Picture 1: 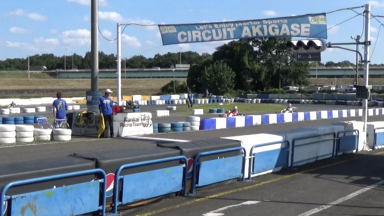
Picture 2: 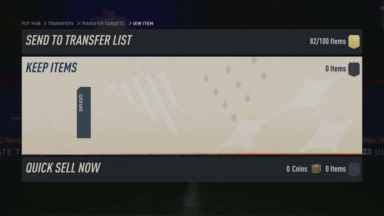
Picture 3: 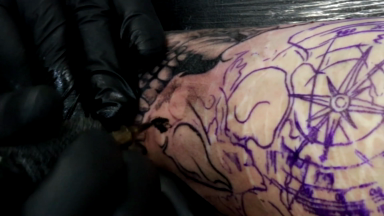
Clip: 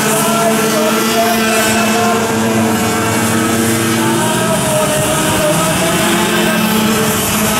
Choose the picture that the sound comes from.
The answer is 1